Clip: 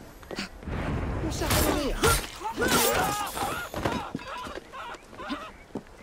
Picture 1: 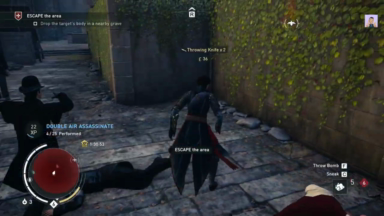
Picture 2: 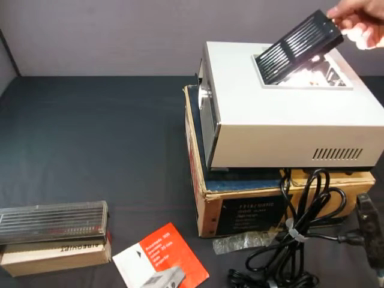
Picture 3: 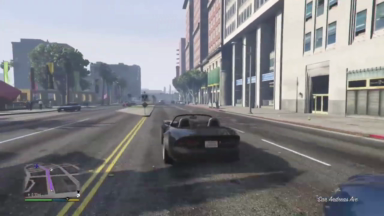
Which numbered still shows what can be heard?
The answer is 1